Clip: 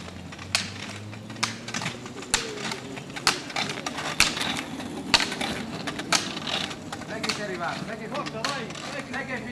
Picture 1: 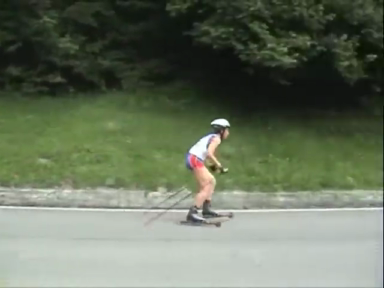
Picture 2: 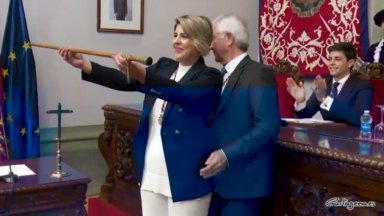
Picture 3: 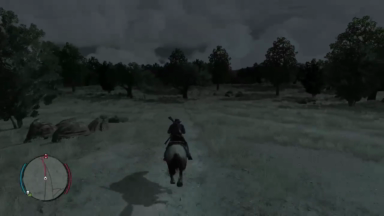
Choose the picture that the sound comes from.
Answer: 1